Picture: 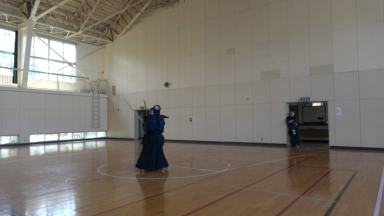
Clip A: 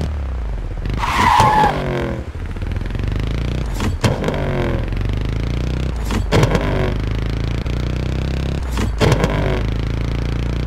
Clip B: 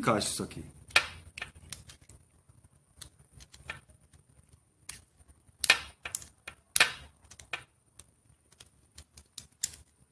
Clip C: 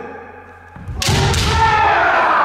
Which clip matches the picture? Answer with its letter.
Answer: C